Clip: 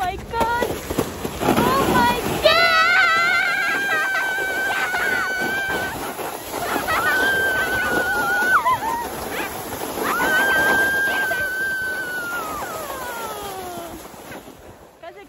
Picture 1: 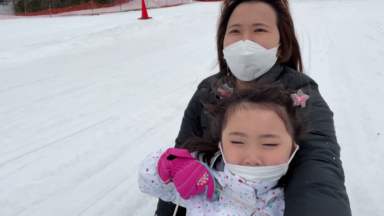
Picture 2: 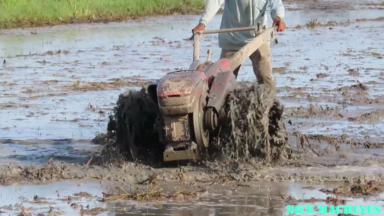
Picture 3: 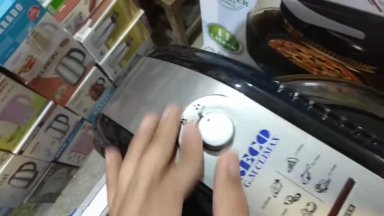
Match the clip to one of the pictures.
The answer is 1